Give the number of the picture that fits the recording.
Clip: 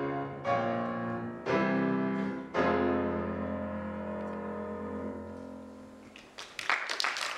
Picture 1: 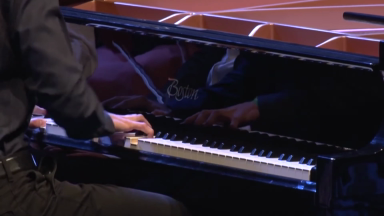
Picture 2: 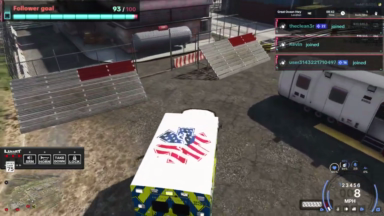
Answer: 1